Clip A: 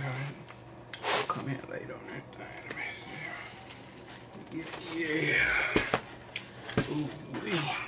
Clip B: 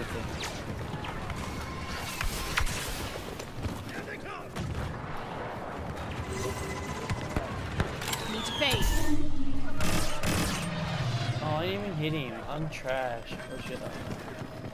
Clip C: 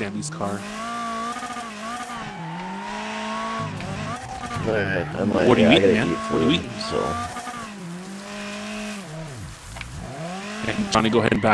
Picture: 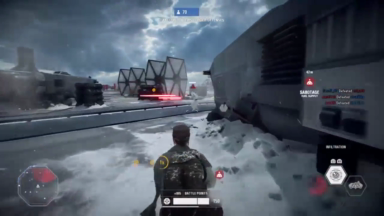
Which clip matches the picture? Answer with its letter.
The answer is B